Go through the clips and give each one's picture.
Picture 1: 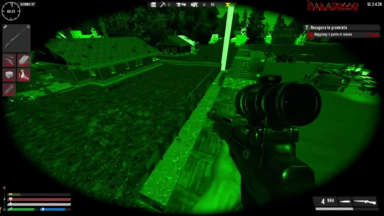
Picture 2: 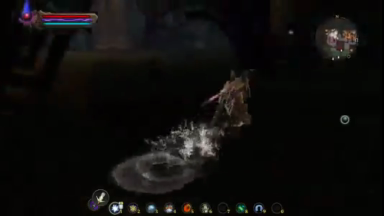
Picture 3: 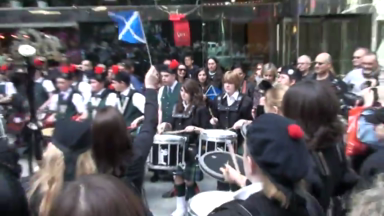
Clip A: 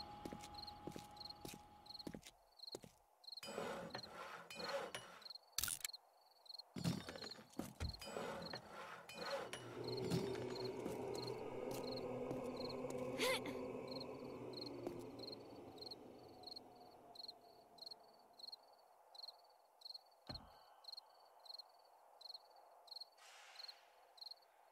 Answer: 1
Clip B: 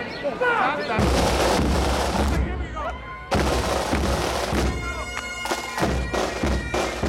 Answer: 3